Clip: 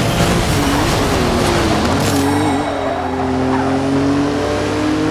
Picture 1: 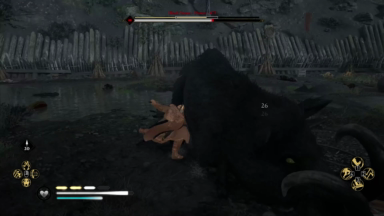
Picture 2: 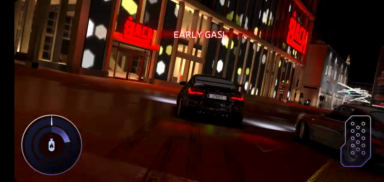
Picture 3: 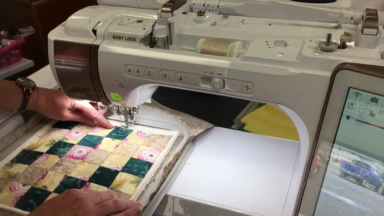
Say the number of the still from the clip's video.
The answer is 2